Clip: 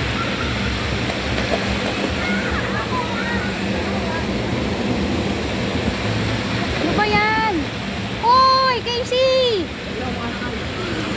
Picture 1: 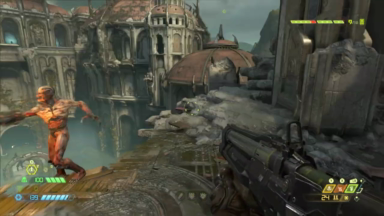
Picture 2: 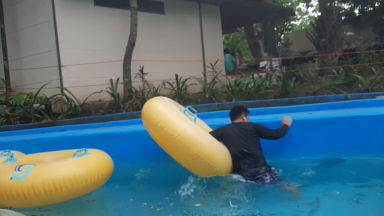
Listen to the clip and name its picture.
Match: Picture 2